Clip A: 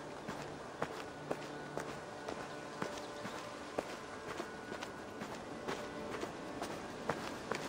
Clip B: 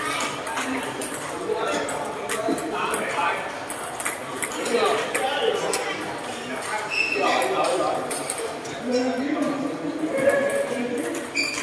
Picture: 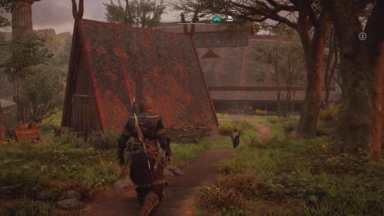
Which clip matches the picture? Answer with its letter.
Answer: A